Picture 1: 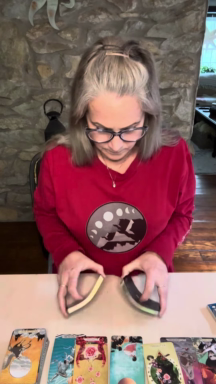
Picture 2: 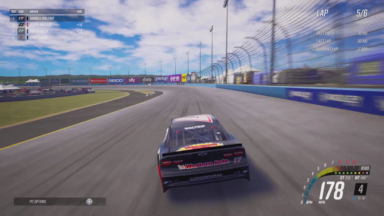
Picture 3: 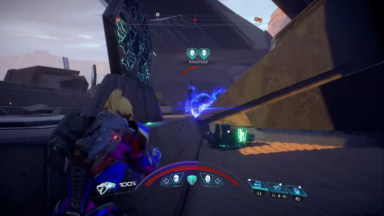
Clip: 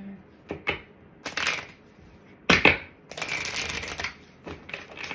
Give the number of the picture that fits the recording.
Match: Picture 1